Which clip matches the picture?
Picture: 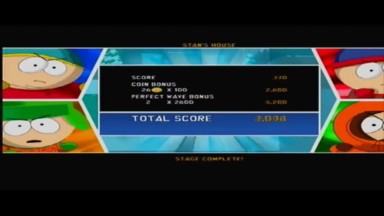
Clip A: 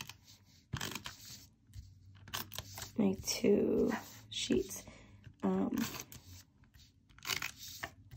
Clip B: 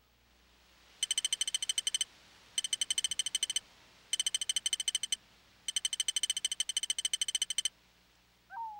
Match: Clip B